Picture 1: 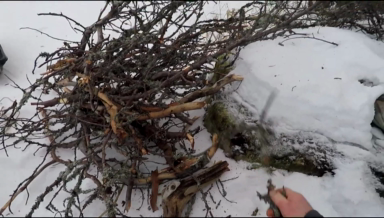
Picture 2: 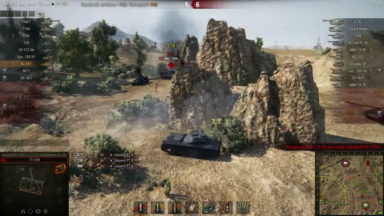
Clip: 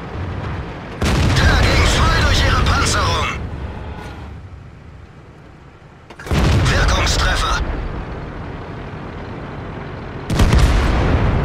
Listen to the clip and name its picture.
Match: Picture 2